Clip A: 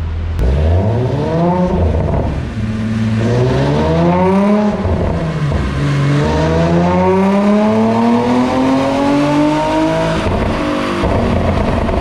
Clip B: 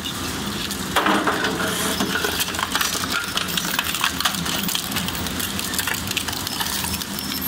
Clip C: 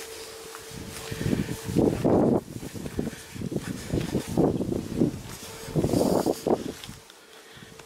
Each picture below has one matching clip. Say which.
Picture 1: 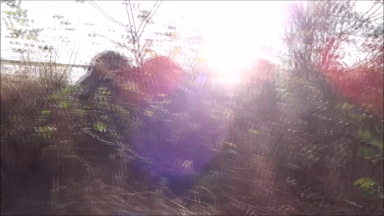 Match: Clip C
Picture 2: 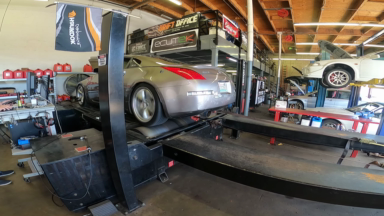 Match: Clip A